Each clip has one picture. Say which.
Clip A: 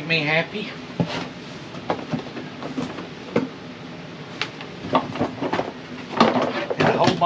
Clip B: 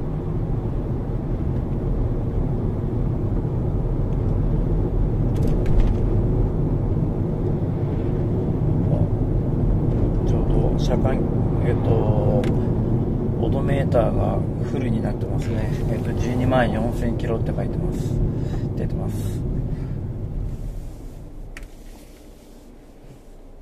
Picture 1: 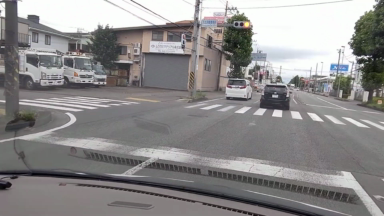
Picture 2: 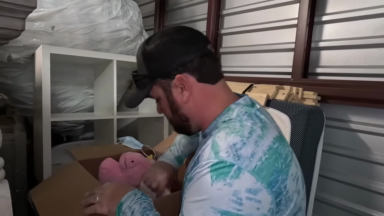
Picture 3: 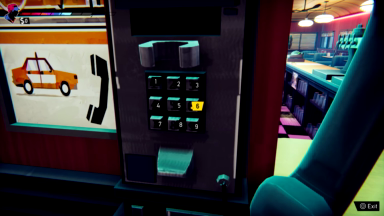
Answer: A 2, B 1